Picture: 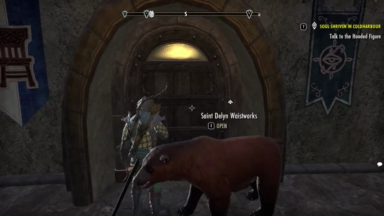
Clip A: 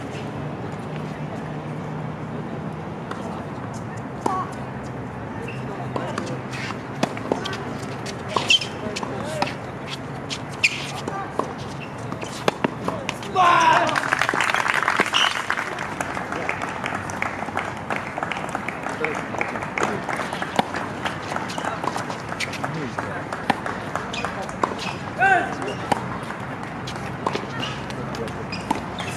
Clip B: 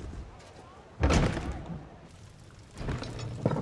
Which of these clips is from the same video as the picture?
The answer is B